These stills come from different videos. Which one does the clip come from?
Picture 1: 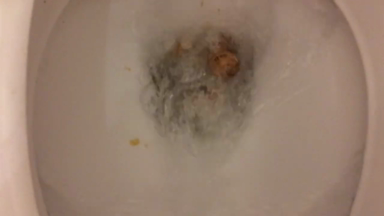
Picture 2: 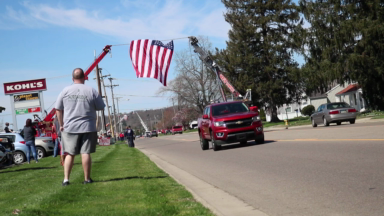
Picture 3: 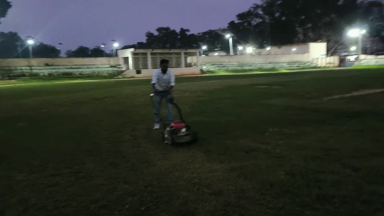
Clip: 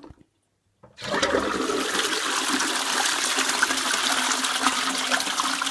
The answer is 1